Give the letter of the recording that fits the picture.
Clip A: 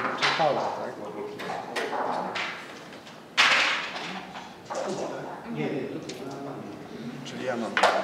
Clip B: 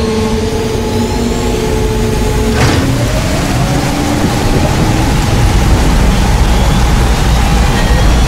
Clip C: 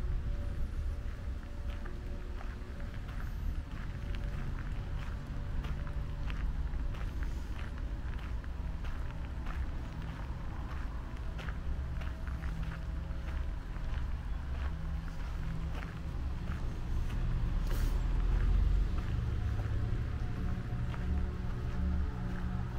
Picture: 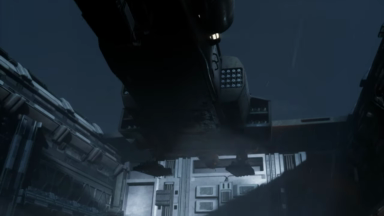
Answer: B